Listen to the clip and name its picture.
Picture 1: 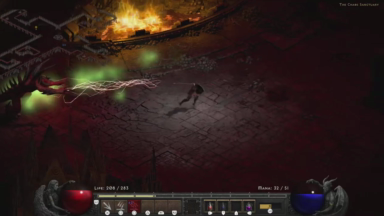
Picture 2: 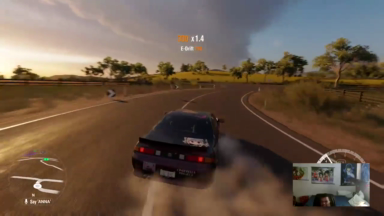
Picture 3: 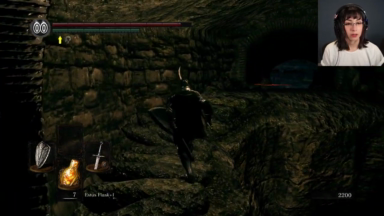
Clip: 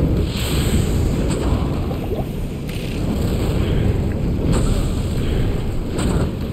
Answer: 1